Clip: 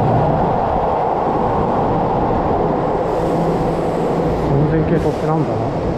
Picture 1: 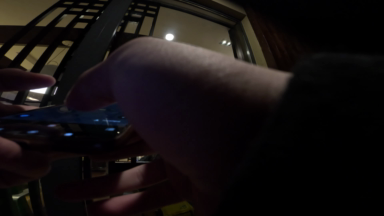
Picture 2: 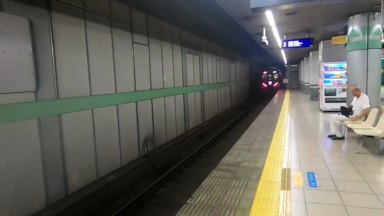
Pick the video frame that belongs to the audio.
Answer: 2